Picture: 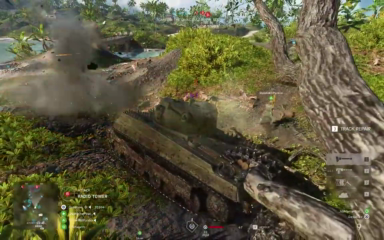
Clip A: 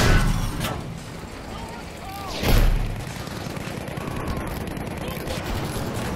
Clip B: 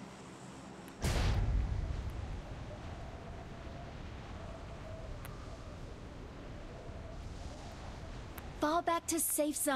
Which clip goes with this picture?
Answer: A